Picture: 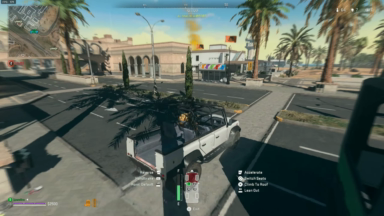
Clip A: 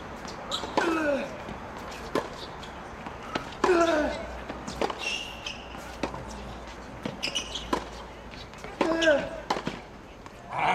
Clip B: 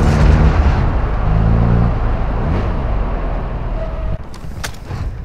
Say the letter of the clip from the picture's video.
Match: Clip B